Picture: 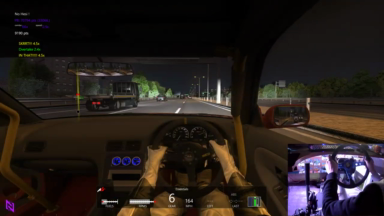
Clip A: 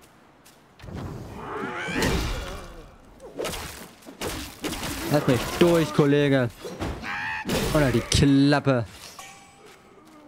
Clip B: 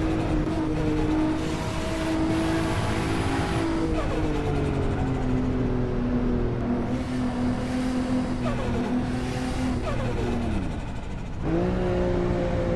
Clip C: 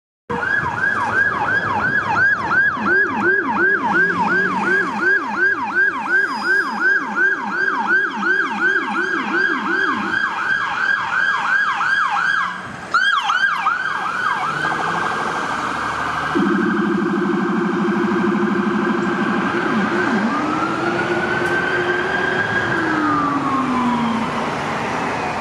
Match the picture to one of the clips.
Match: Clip B